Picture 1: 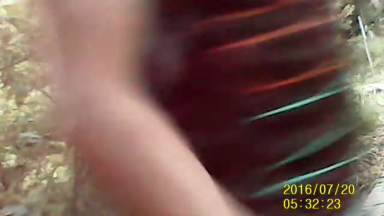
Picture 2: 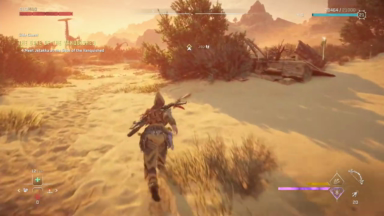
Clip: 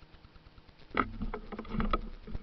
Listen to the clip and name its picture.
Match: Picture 1